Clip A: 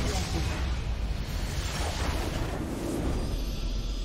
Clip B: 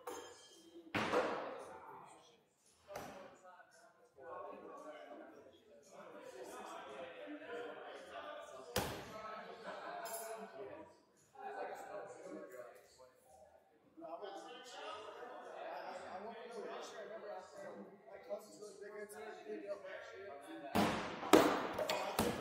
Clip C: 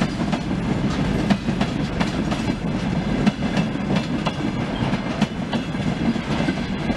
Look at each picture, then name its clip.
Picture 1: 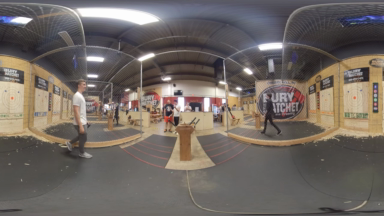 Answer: B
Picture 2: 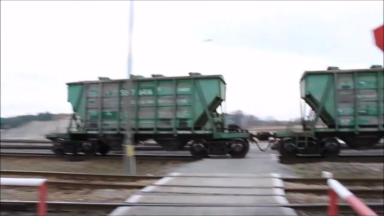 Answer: C